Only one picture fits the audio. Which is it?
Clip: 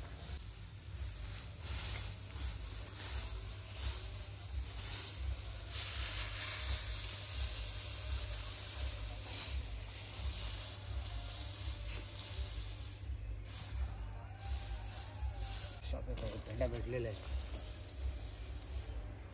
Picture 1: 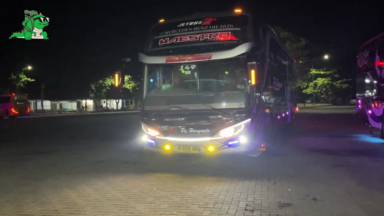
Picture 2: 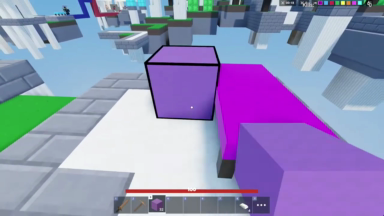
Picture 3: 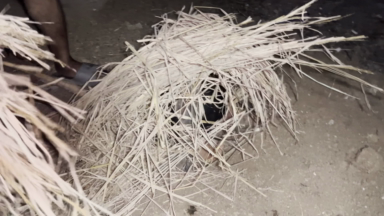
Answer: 3